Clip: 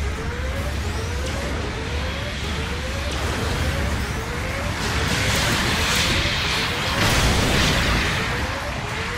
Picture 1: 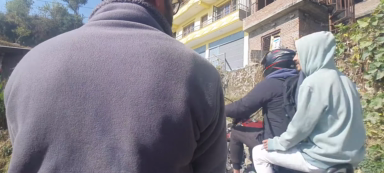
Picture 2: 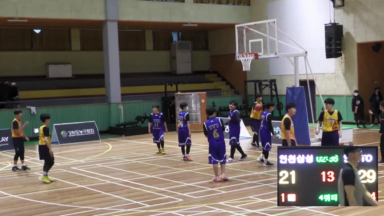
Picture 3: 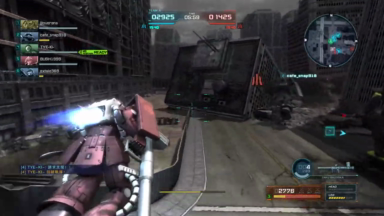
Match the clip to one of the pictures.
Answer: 3